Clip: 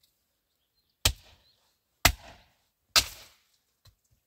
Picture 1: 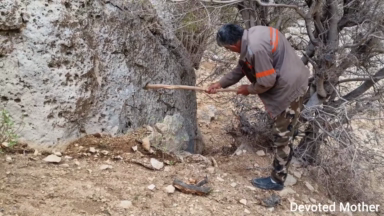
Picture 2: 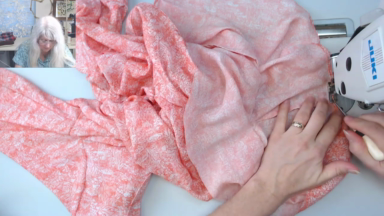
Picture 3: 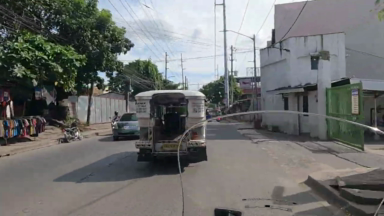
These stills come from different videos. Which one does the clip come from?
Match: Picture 1